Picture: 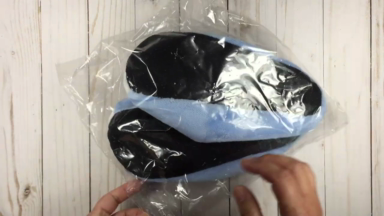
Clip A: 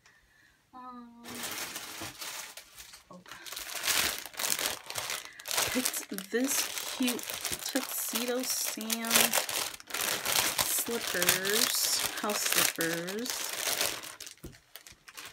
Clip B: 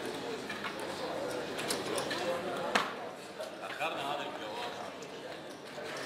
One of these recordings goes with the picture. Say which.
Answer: A